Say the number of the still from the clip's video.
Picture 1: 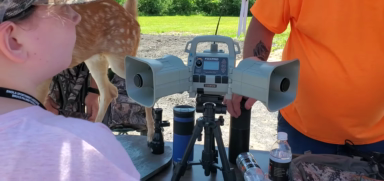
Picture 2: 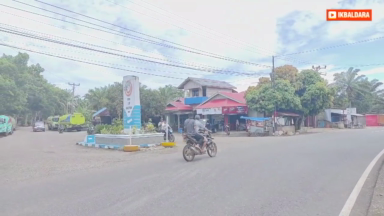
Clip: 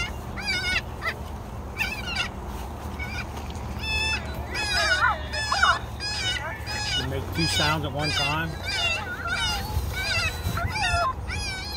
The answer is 1